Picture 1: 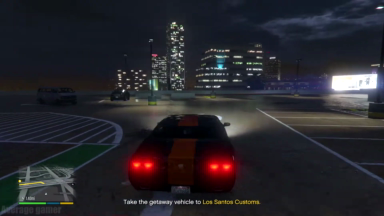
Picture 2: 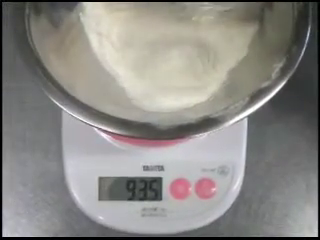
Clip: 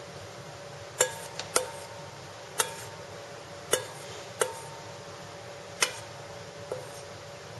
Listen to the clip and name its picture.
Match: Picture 2